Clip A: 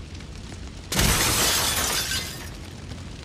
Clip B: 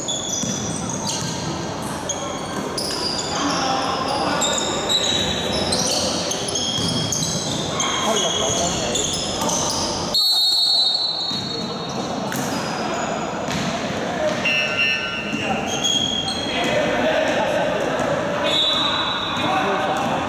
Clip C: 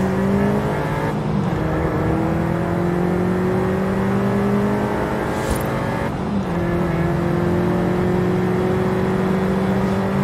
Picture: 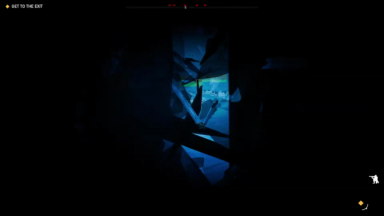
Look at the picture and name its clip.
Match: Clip A